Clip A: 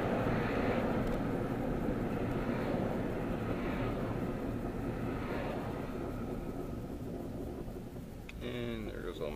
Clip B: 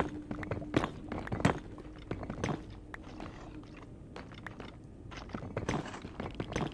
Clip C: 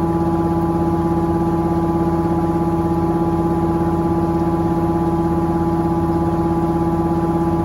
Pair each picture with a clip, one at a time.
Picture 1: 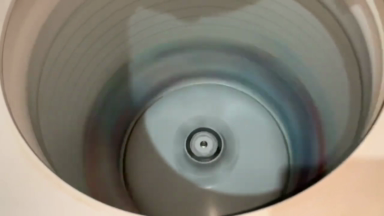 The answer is C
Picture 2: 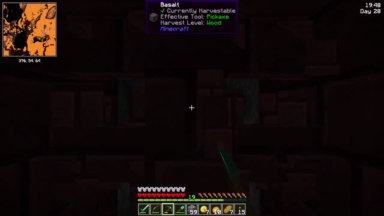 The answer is B